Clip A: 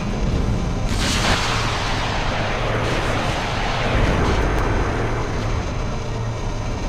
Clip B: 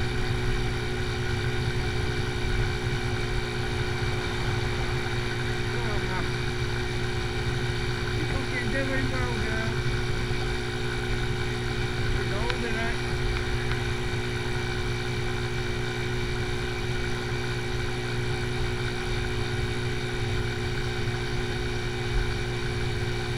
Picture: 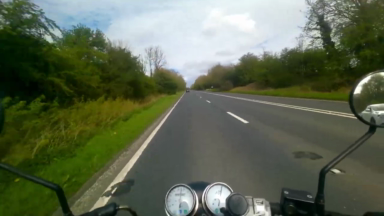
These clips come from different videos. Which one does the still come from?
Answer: B